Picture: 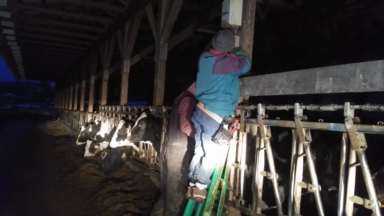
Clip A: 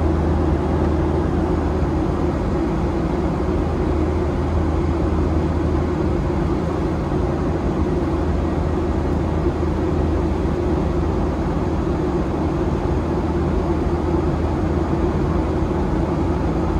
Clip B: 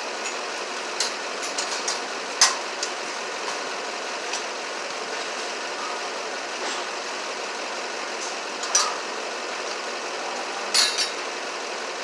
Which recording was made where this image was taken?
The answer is B